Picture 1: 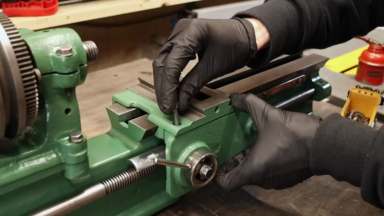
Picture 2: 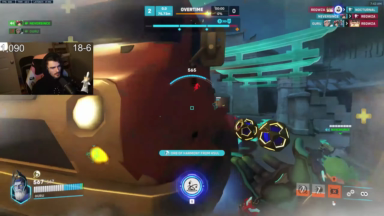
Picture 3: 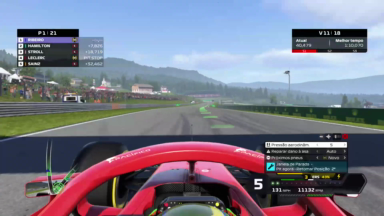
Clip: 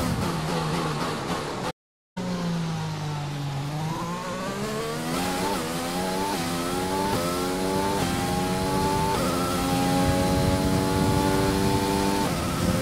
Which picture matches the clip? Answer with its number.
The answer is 3